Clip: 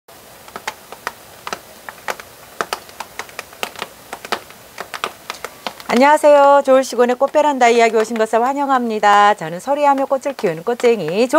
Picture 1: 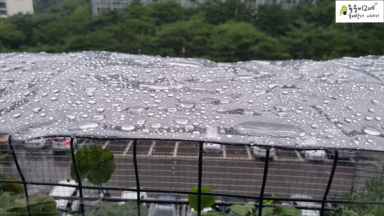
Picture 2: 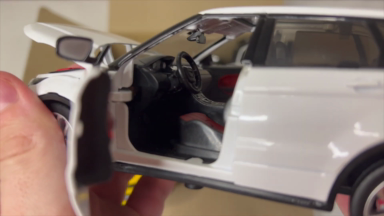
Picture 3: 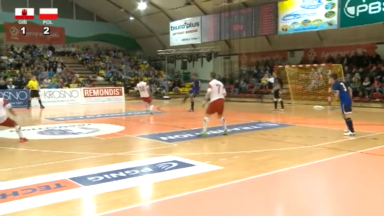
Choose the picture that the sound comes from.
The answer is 1